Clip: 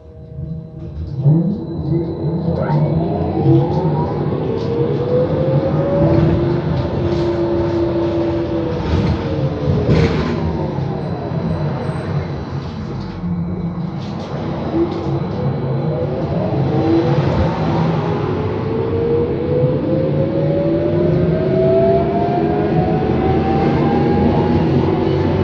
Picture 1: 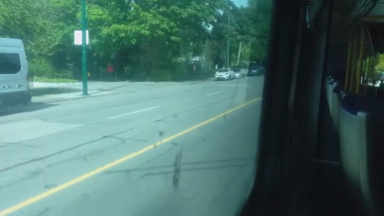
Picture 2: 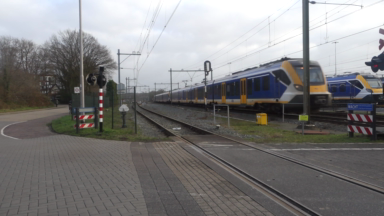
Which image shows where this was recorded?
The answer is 1